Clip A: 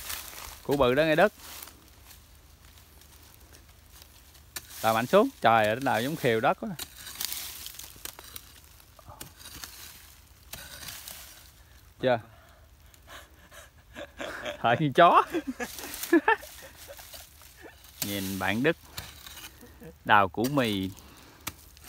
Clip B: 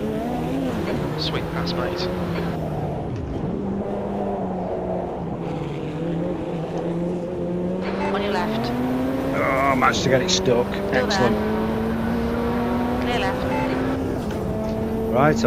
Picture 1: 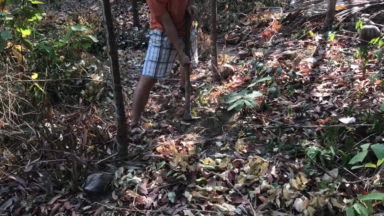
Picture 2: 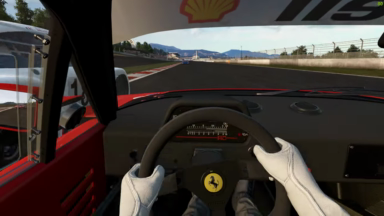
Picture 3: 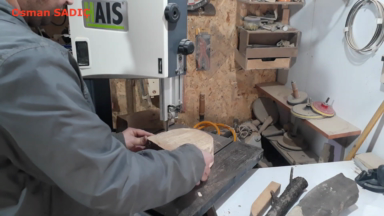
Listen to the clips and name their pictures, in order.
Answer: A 1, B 2